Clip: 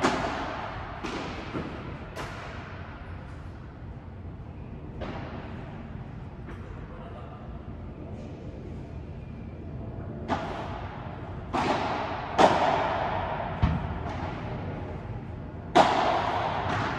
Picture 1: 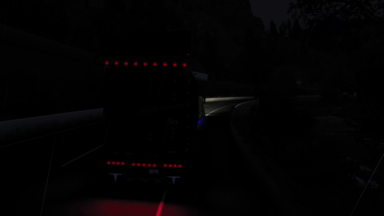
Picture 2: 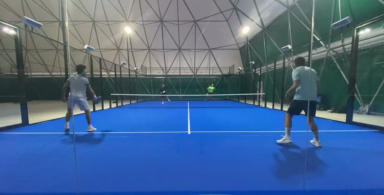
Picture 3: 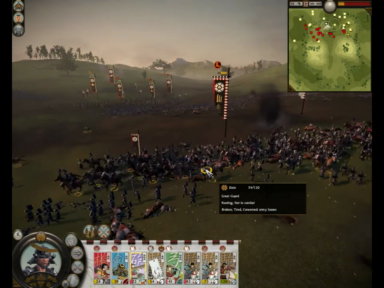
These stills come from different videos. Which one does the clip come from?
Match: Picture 2